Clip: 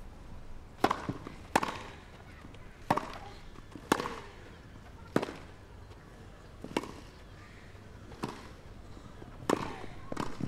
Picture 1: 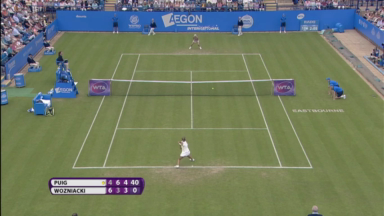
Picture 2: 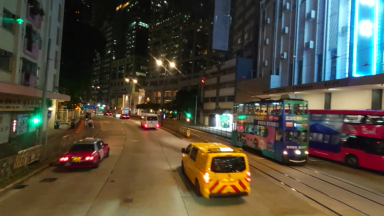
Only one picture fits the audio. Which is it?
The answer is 1